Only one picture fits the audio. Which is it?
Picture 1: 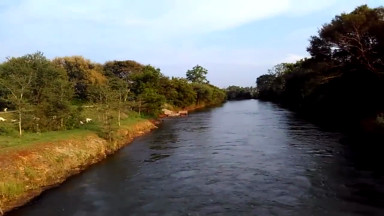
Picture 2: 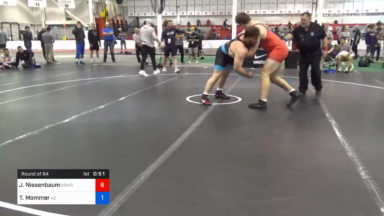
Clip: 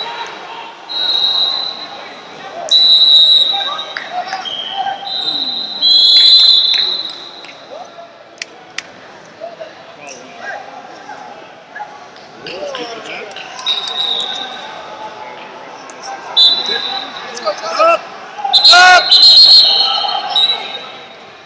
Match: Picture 2